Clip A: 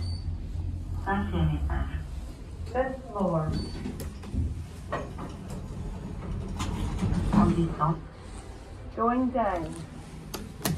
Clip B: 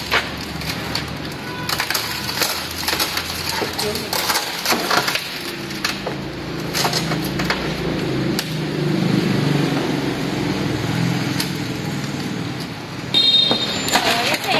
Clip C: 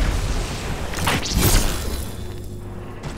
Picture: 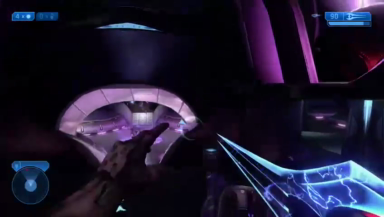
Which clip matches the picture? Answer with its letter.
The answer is C